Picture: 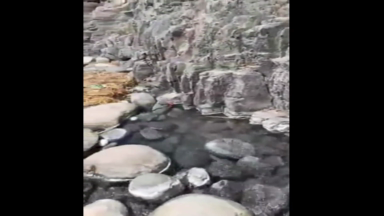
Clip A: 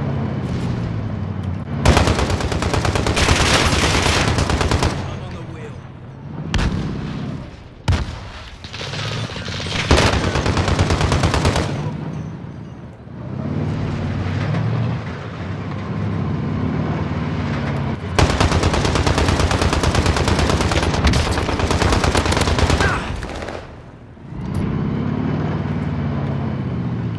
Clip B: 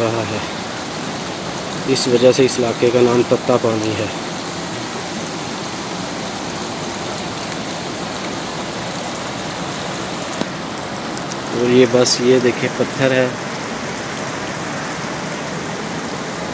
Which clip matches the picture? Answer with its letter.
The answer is B